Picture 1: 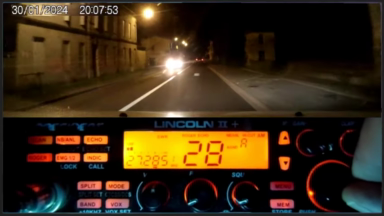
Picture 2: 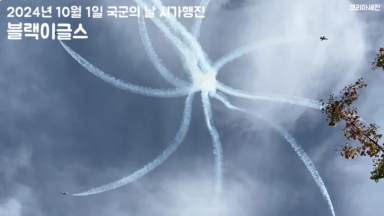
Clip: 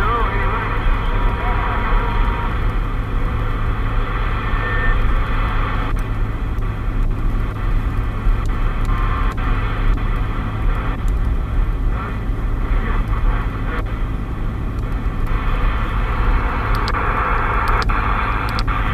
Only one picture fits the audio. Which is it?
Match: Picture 1